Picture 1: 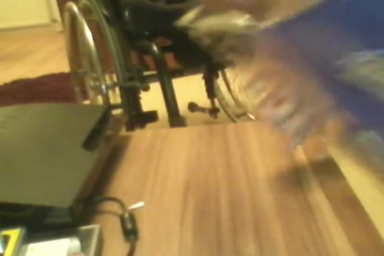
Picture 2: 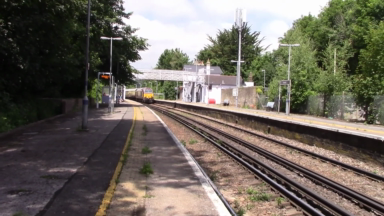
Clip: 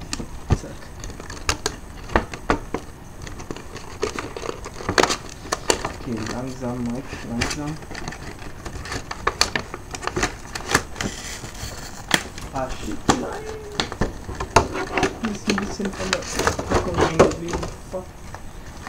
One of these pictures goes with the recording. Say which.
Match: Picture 1